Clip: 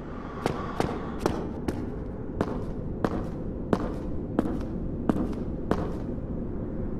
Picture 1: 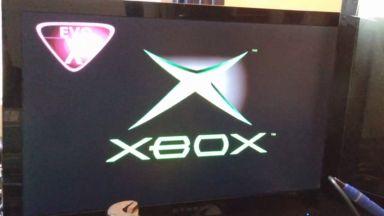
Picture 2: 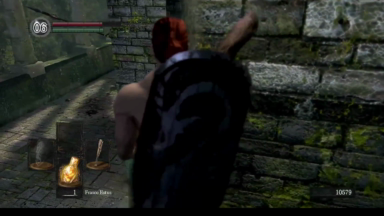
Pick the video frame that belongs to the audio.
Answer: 2